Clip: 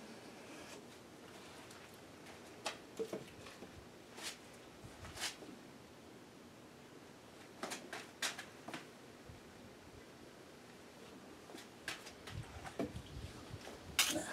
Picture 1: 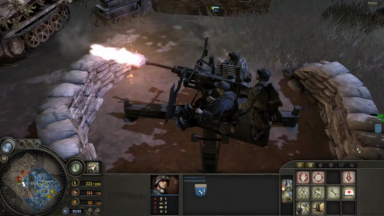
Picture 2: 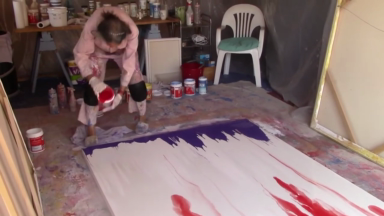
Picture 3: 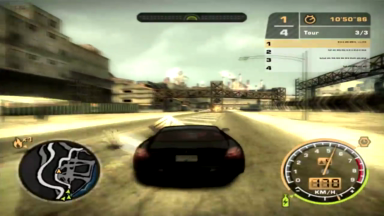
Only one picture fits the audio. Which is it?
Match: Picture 2